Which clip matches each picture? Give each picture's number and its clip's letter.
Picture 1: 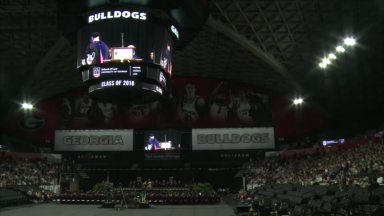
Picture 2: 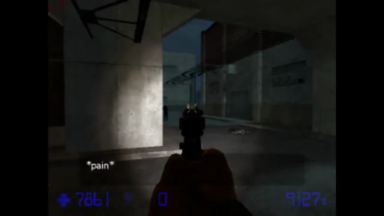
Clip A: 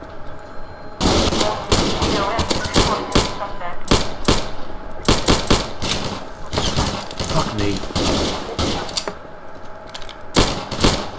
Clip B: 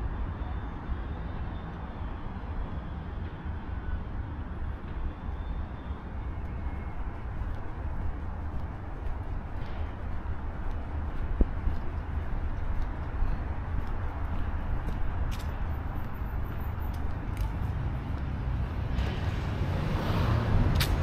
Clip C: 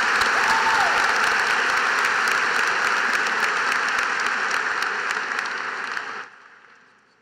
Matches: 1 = C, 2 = A